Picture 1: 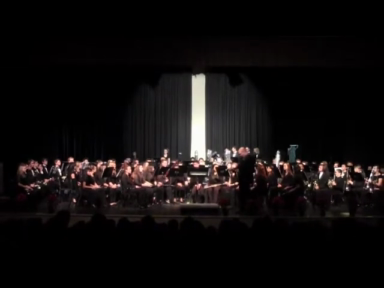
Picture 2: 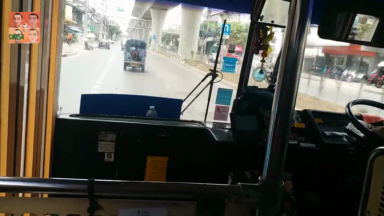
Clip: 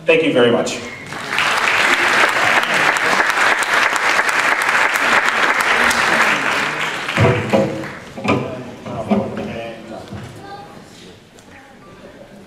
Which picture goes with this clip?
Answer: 1